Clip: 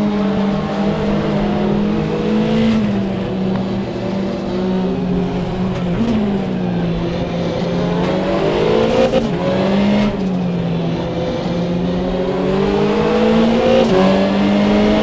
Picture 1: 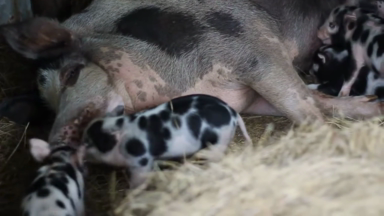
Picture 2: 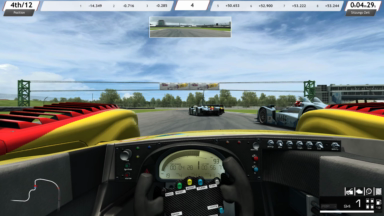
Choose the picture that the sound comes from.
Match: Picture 2